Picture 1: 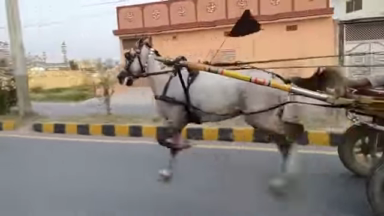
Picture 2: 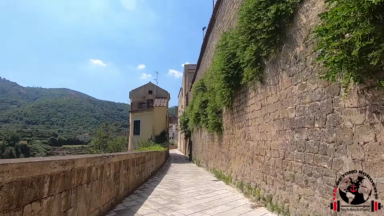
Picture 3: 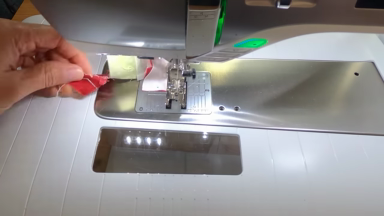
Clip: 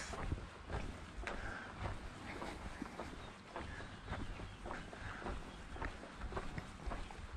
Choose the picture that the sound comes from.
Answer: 2